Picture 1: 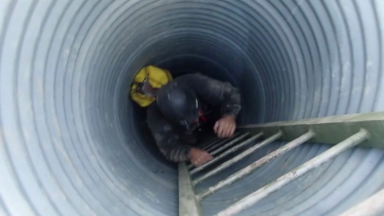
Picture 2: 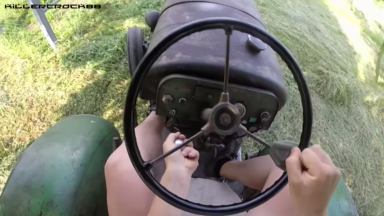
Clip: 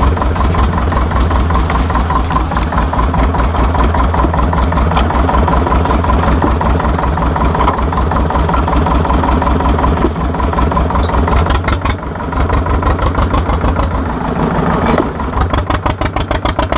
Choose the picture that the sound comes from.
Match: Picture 2